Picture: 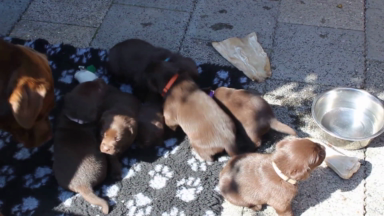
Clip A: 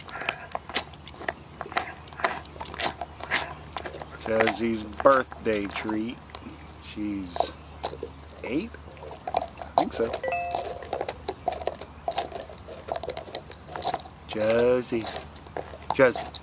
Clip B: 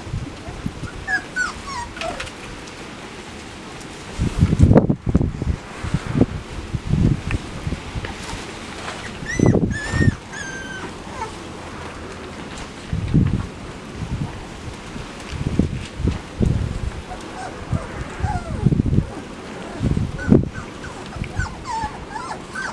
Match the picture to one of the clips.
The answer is B